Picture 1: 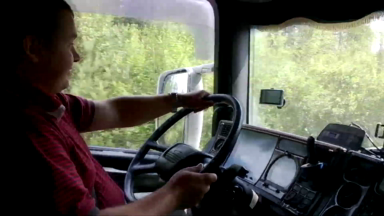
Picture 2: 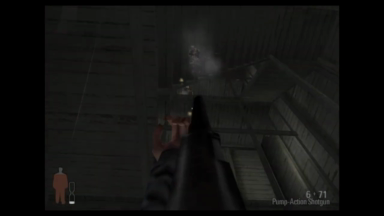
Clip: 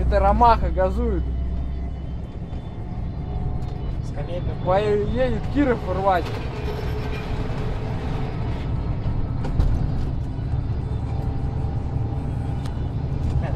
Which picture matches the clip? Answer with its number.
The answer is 1